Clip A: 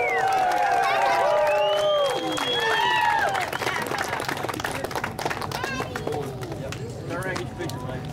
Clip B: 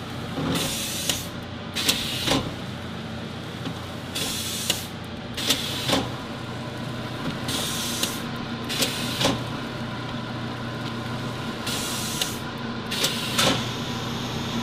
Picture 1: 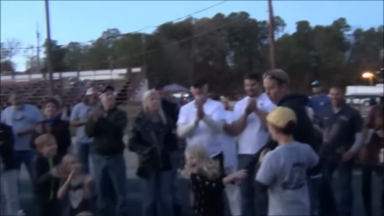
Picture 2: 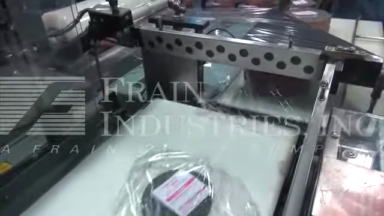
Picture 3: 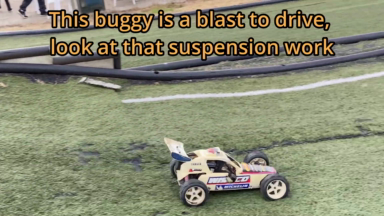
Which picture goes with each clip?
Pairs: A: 1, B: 2